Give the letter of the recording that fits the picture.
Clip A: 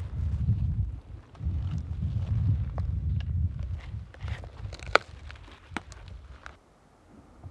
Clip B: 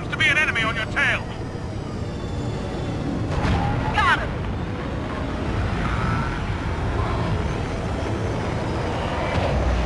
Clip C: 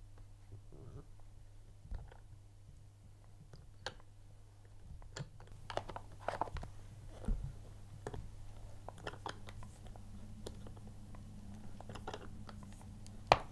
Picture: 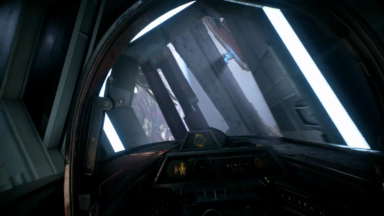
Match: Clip B